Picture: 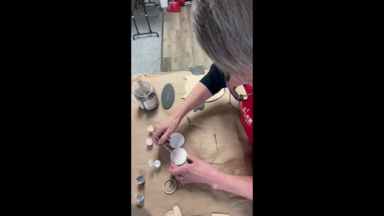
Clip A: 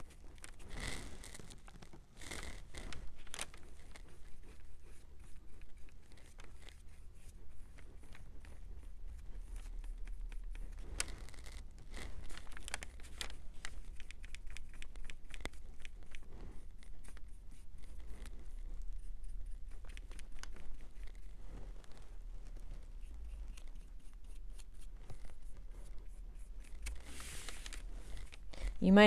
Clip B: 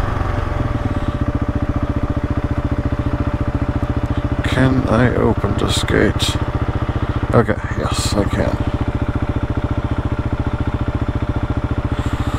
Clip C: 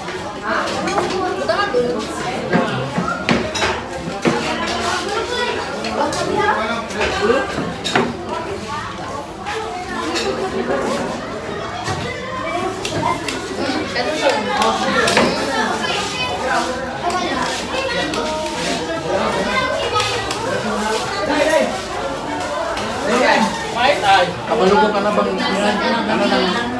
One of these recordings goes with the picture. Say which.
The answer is A